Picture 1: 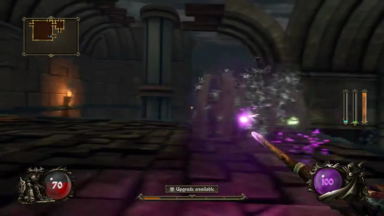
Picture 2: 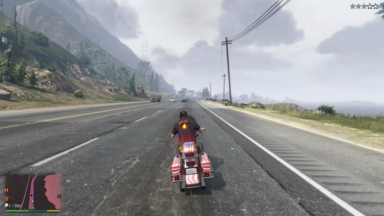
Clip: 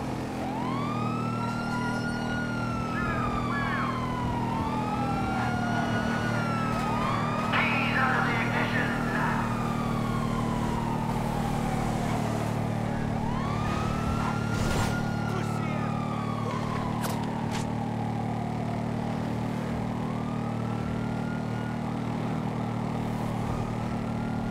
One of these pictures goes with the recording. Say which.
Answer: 2